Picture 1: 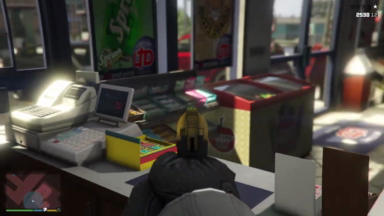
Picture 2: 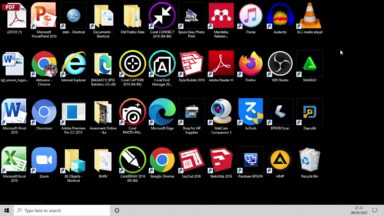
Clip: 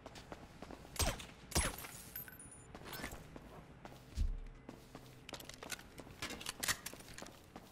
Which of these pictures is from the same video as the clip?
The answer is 1